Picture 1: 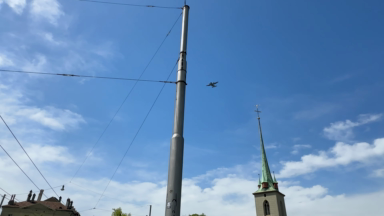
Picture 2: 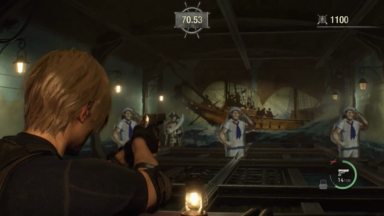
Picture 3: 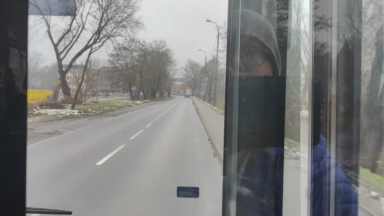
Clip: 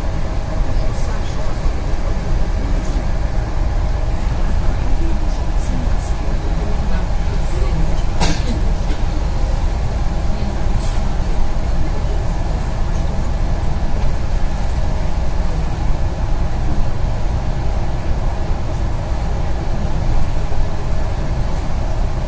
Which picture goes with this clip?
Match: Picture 3